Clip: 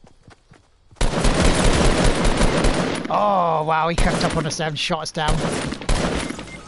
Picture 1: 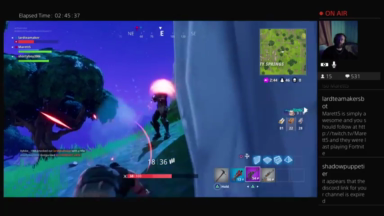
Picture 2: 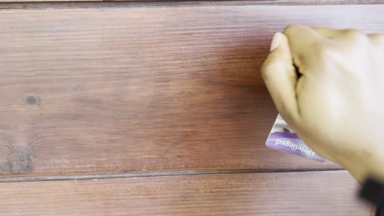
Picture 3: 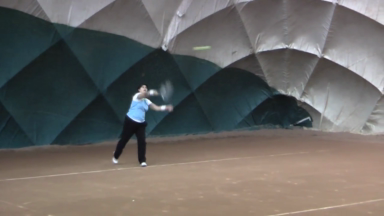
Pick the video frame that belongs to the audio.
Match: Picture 1